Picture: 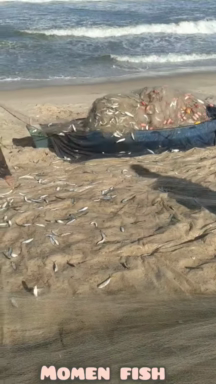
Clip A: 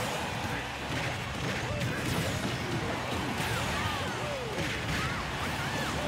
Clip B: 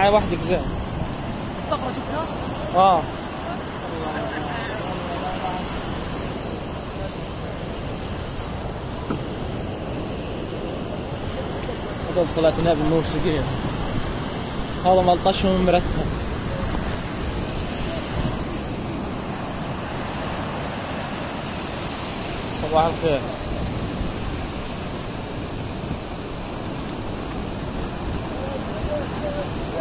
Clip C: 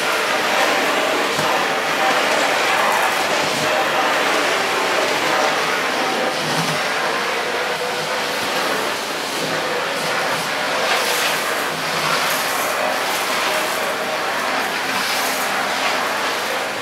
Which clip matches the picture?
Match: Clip B